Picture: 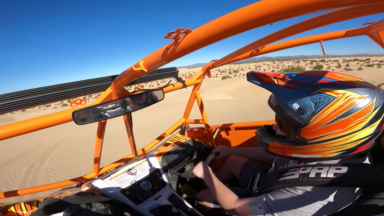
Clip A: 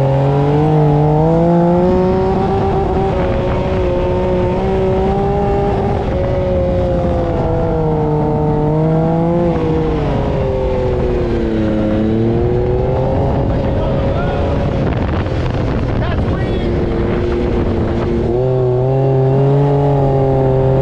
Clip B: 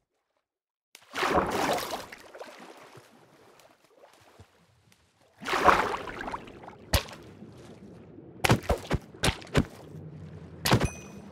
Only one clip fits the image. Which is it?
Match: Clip A